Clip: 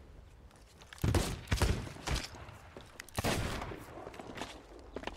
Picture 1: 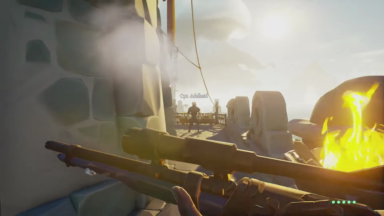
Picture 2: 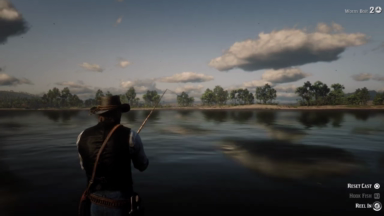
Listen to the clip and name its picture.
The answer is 1